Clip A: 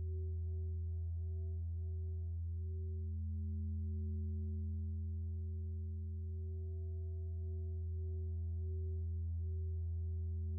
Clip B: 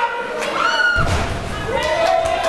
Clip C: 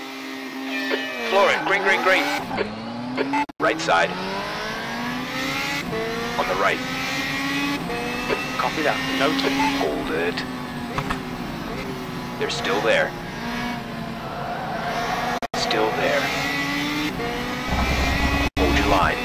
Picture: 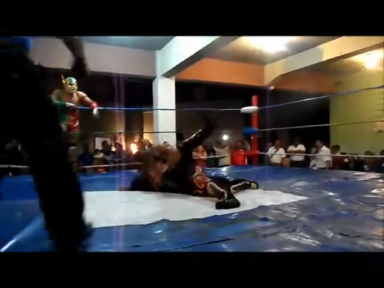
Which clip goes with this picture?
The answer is B